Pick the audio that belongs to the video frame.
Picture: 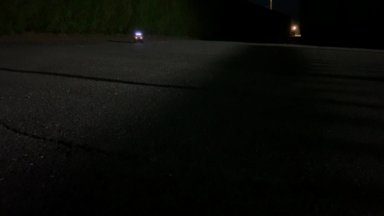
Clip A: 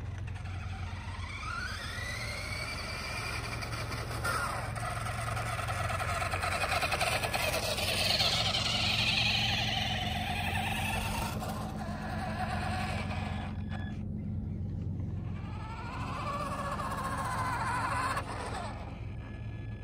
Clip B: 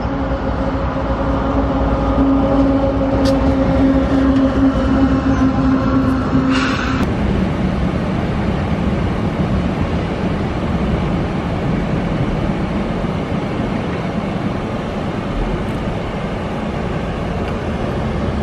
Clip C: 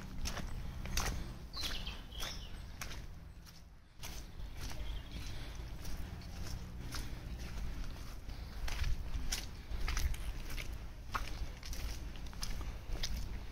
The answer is A